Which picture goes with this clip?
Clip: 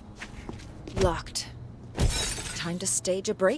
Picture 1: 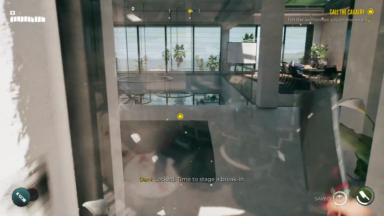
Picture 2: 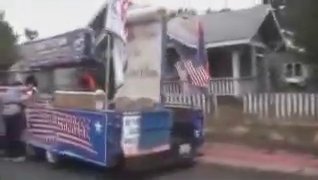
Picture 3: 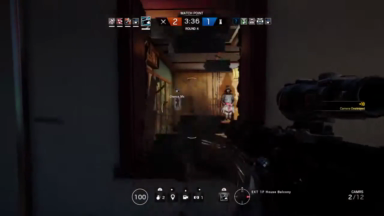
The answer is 1